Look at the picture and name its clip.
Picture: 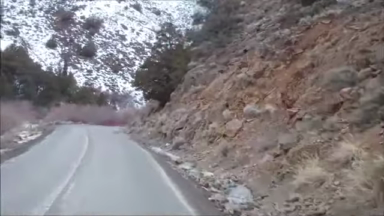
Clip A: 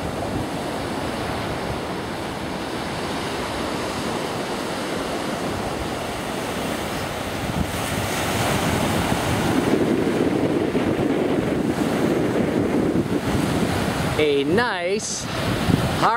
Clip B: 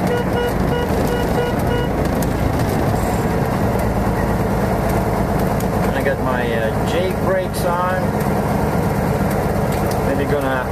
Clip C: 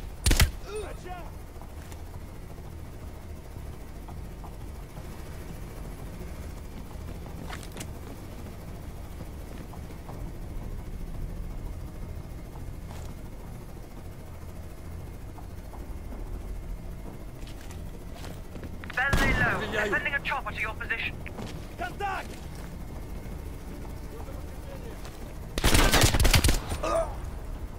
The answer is B